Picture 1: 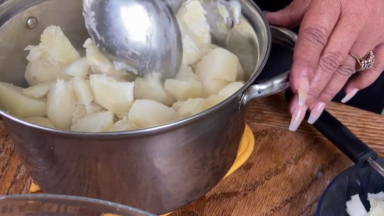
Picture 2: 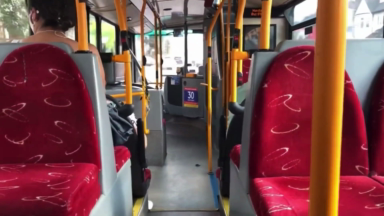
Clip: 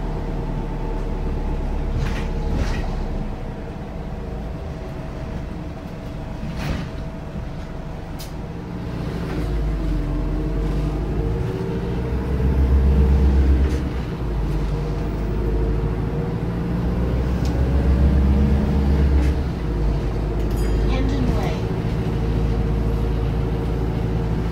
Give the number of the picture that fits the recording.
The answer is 2